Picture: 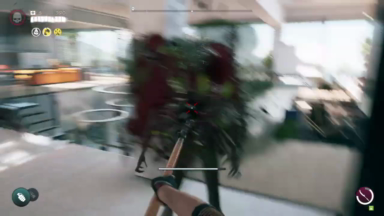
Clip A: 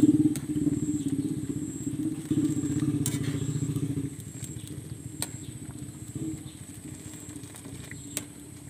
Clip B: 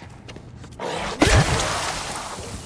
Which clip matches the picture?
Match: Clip B